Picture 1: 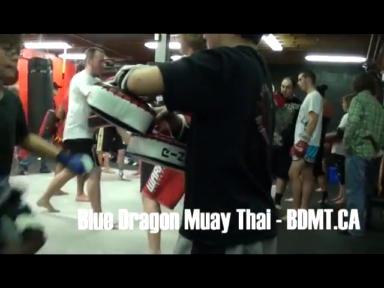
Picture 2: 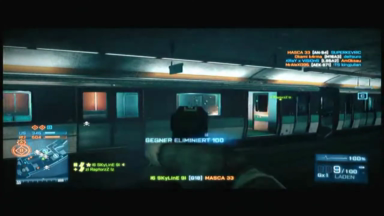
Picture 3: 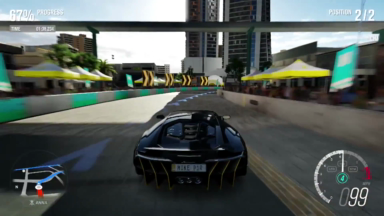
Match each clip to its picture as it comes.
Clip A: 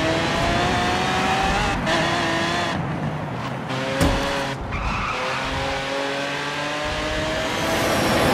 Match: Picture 3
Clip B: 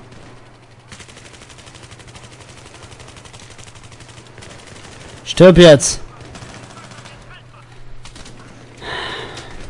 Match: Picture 2